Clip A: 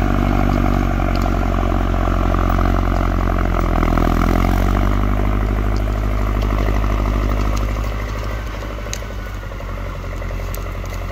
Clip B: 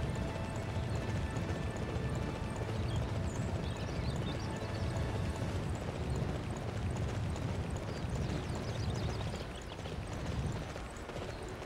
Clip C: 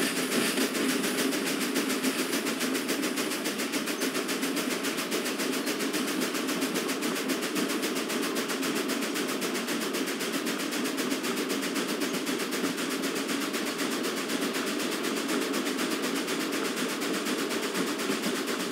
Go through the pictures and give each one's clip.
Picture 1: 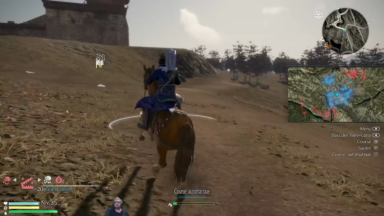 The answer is B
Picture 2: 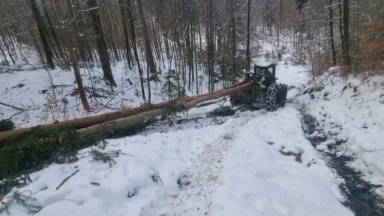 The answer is A